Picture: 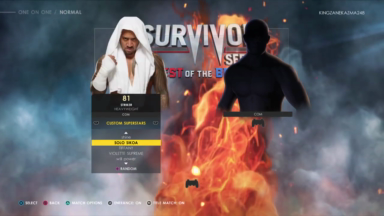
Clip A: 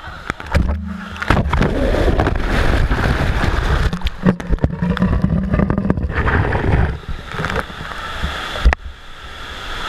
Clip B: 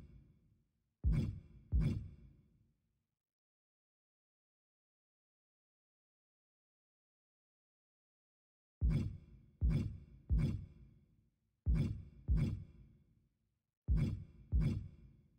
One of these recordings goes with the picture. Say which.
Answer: B